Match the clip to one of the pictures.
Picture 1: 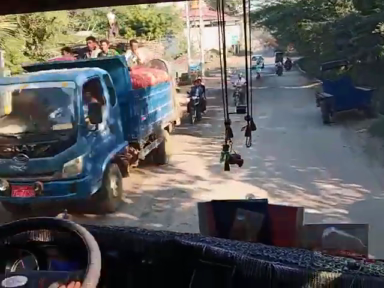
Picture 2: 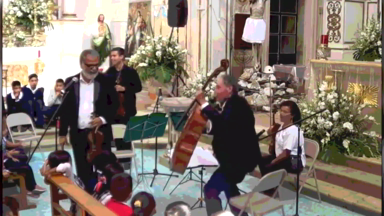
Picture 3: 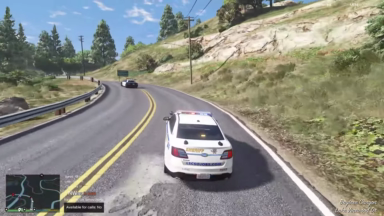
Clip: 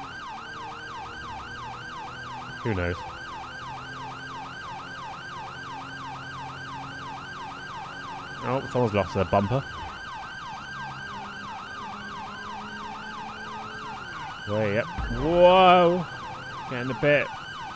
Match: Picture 3